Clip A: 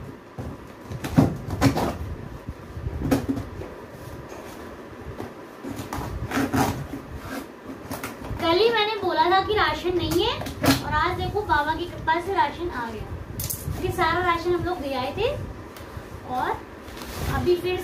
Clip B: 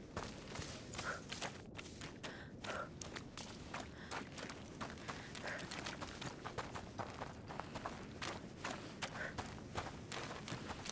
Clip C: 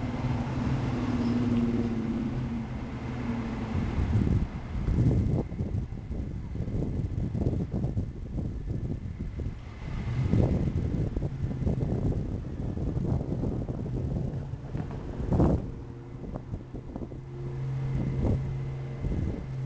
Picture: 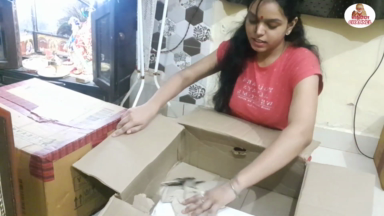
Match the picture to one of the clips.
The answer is A